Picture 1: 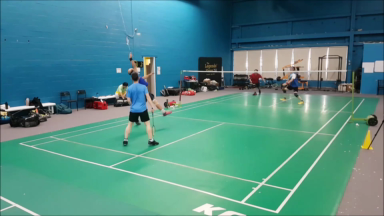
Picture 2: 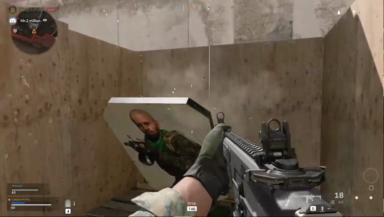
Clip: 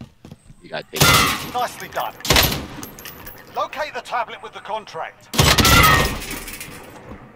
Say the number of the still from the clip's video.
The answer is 2